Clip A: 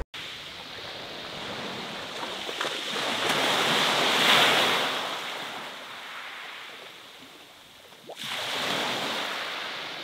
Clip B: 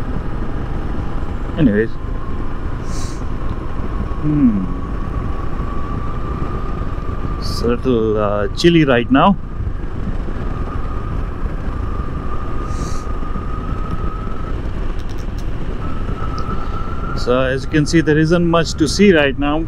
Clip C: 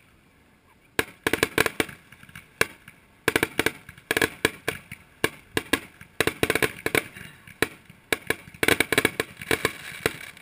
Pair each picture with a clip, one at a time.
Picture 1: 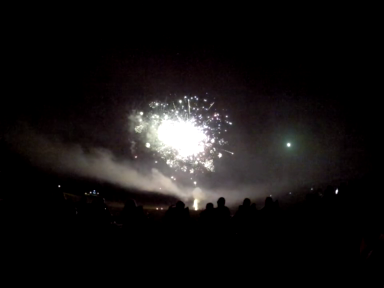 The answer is C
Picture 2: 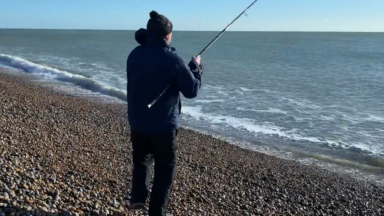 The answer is A